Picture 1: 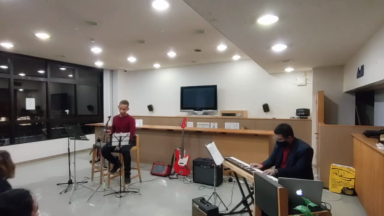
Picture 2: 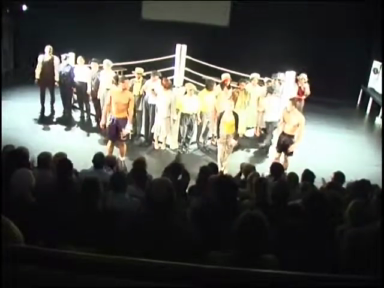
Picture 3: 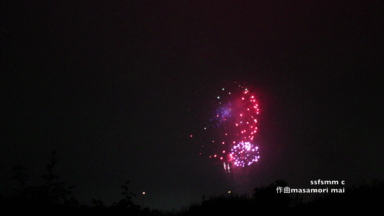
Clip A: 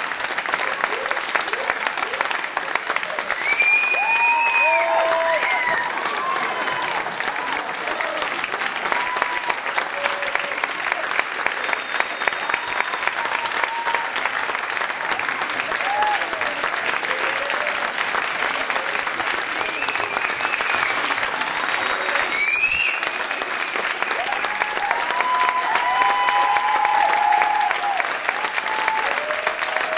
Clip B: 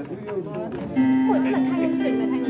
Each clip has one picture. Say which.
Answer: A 2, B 1